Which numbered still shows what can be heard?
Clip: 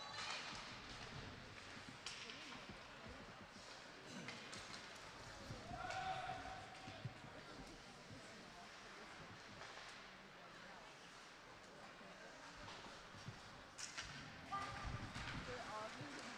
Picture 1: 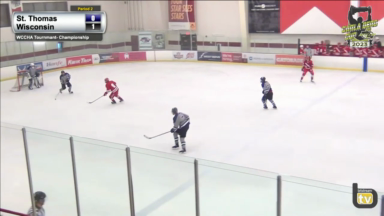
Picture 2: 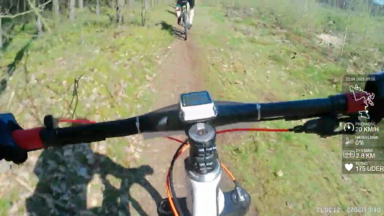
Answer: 1